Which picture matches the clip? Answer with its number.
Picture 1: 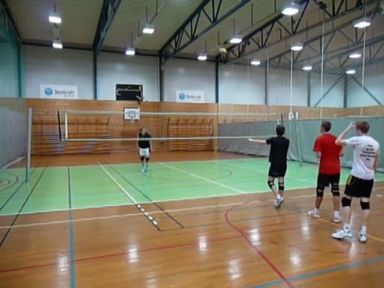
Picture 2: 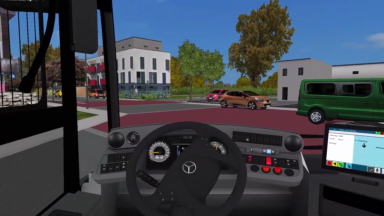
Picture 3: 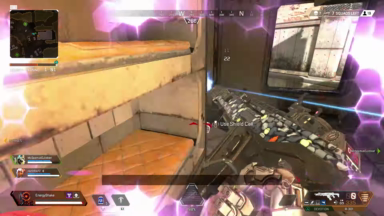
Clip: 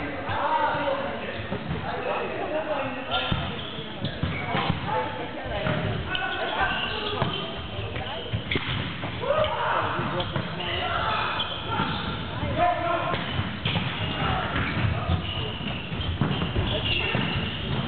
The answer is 1